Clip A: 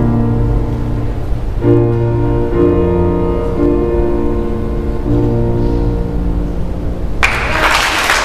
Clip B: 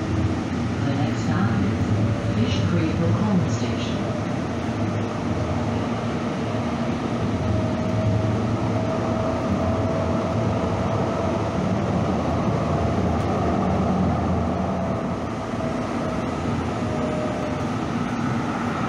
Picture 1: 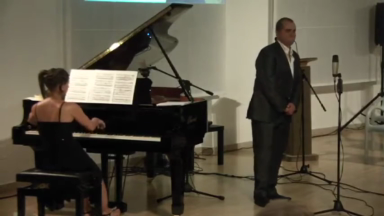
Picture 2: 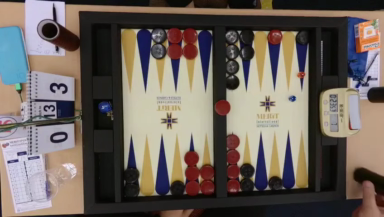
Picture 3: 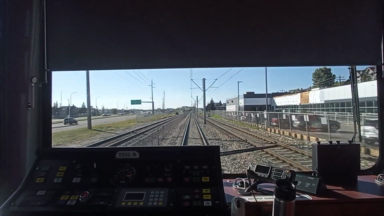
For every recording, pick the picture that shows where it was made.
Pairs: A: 1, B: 3